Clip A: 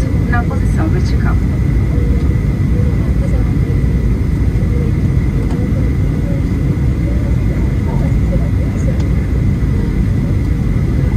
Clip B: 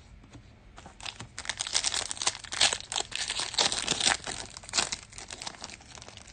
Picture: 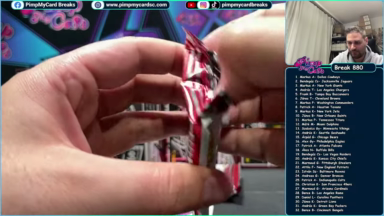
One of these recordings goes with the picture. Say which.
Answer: B